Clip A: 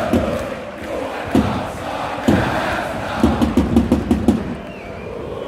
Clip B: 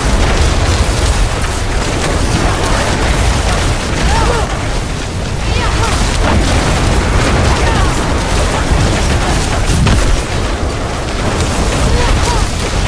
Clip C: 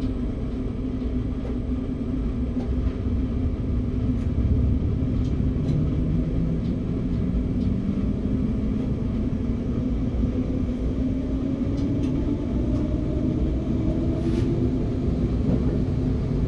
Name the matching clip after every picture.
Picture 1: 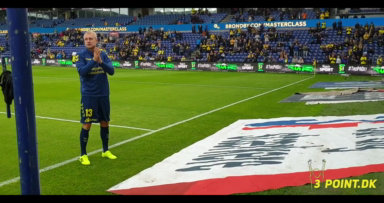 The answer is A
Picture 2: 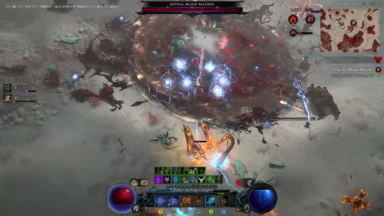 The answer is B